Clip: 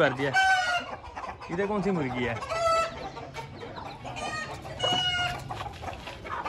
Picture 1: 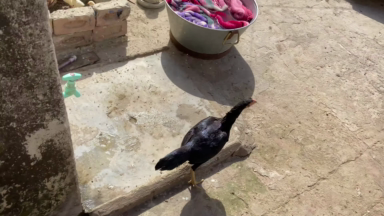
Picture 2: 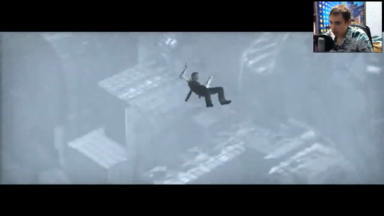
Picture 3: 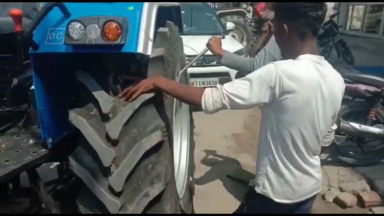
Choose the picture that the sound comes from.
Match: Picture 1